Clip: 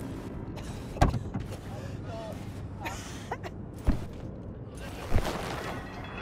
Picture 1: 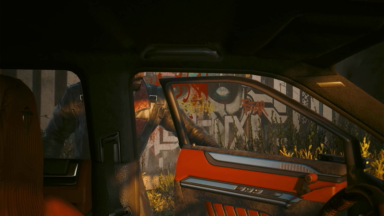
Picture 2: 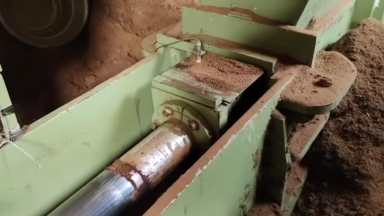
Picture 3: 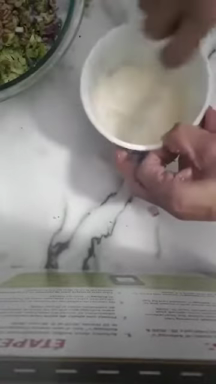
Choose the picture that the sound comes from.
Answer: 1